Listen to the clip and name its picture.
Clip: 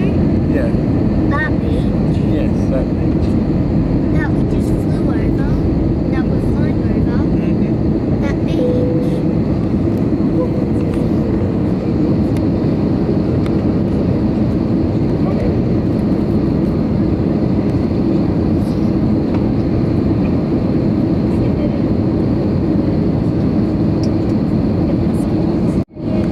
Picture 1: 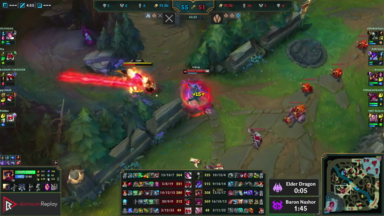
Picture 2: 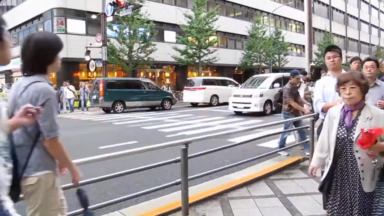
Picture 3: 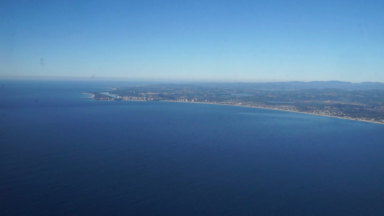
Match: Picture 3